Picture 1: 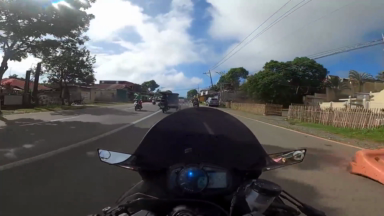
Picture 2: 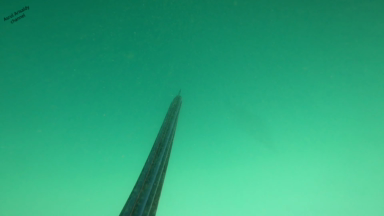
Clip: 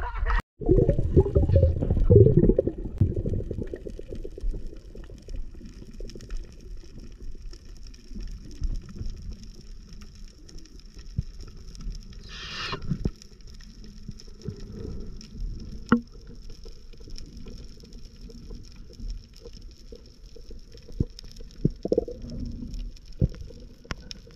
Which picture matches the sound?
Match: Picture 2